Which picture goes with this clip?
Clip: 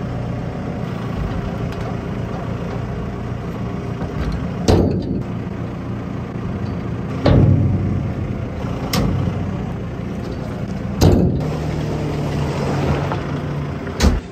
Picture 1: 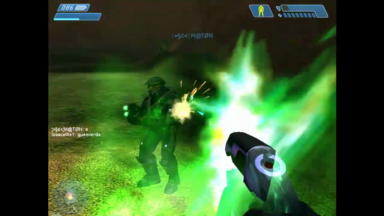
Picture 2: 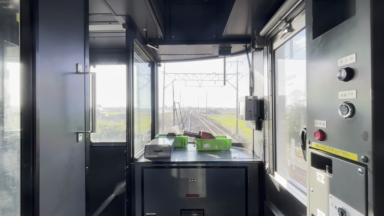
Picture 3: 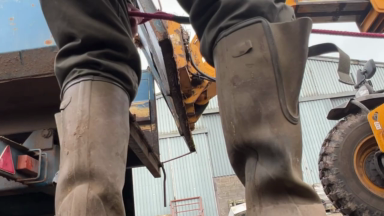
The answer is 3